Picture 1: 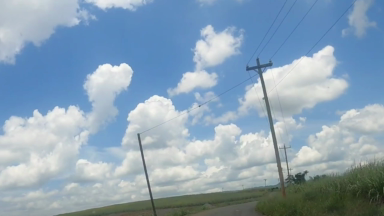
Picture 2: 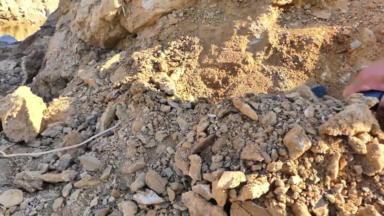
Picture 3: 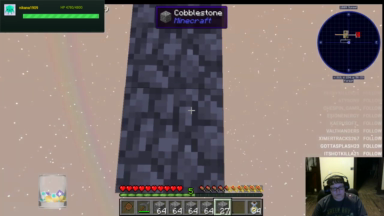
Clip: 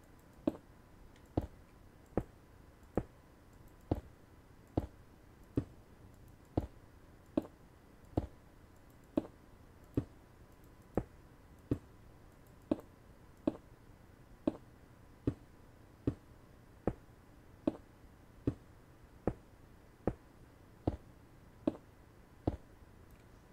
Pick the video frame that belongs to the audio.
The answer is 3